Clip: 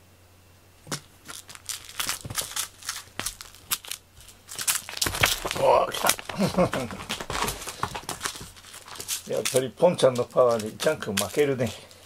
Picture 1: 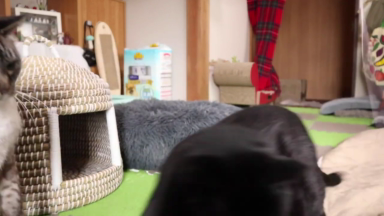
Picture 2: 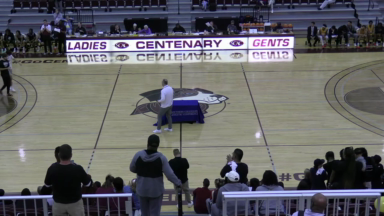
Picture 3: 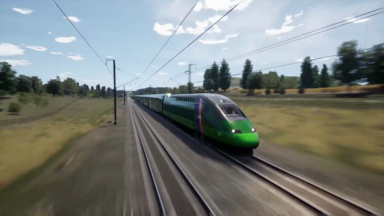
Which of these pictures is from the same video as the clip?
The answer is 1